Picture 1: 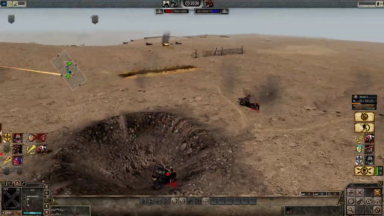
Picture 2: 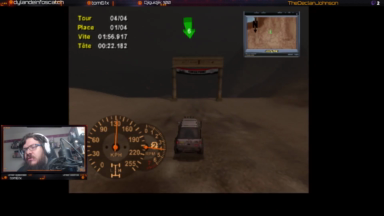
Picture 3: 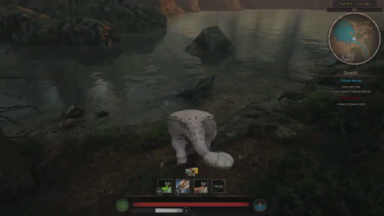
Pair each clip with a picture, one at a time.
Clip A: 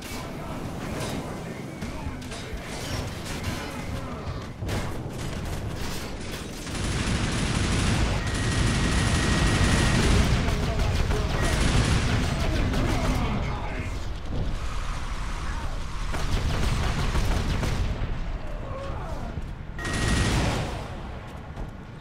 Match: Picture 1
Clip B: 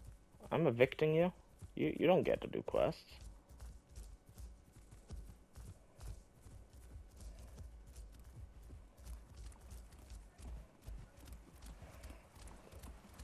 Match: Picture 3